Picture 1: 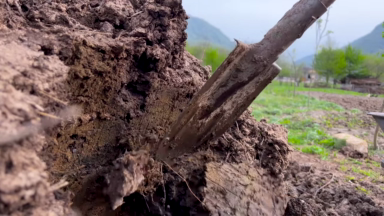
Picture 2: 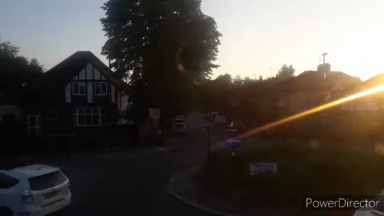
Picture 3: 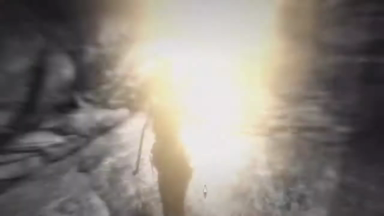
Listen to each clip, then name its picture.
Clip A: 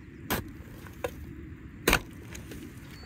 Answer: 1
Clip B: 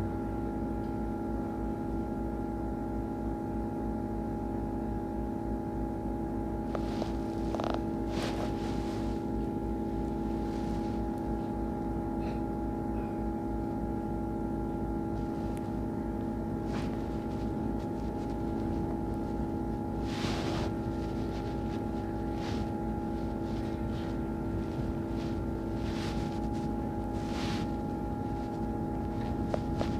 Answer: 2